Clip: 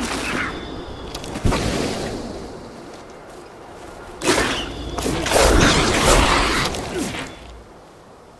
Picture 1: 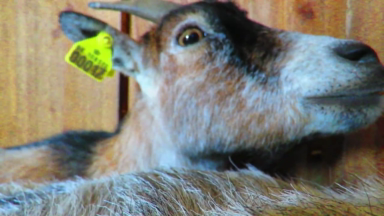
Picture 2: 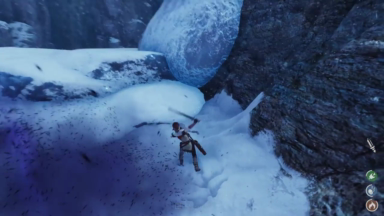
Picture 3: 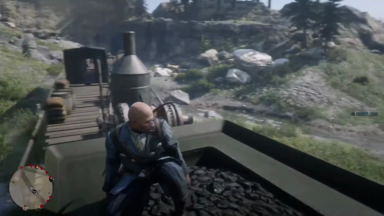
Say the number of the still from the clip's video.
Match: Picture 2